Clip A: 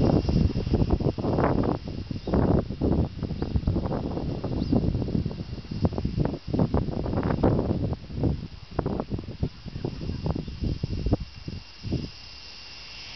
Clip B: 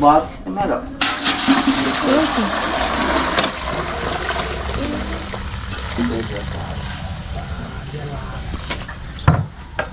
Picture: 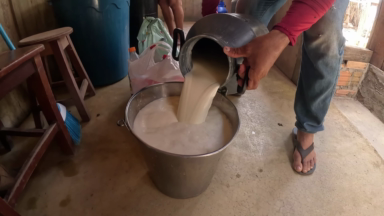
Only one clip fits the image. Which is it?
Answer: B